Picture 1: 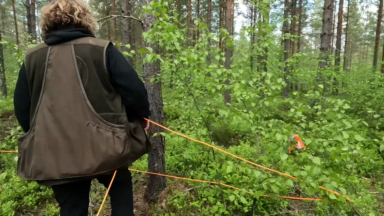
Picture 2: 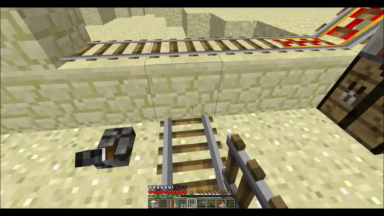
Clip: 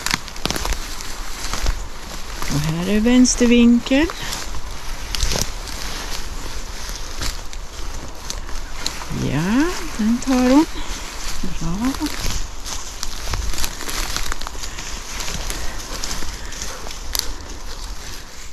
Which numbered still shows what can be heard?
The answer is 1